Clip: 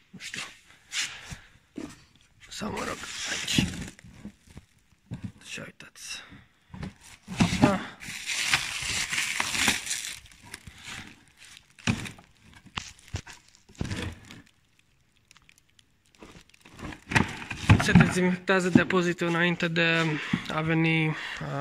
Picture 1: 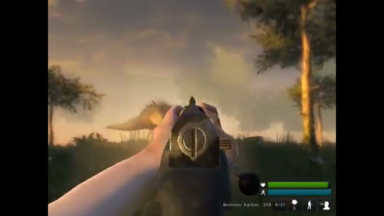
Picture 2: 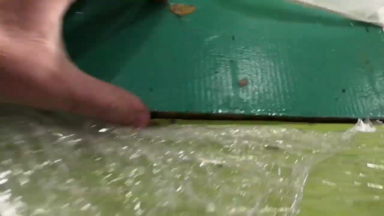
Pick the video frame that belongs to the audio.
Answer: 2